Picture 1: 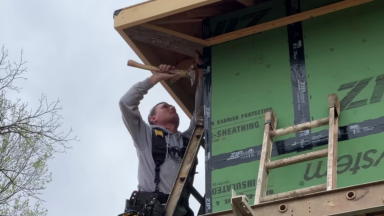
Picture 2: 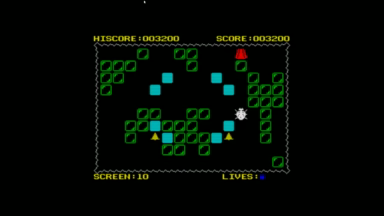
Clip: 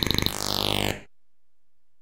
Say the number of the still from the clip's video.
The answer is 2